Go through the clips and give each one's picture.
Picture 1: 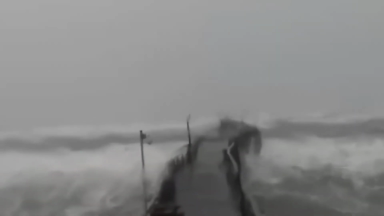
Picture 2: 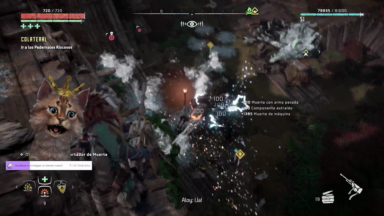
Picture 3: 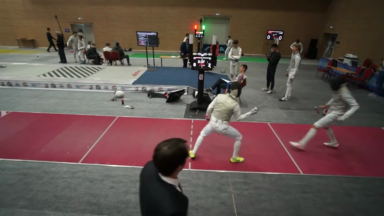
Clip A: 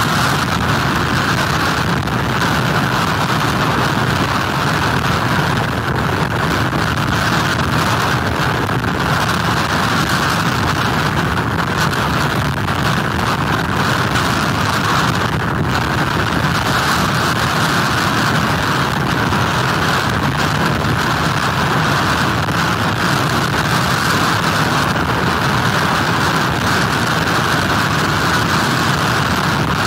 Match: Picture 1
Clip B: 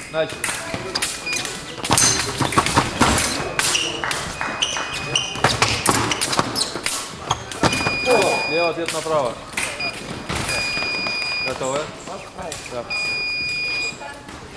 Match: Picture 3